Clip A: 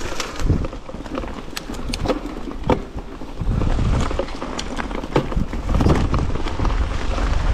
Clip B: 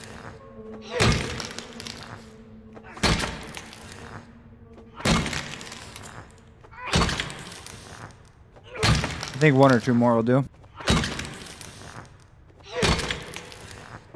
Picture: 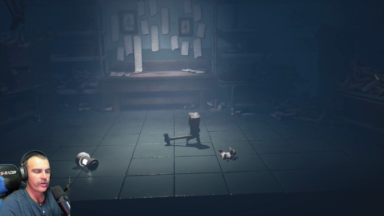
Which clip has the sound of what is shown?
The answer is B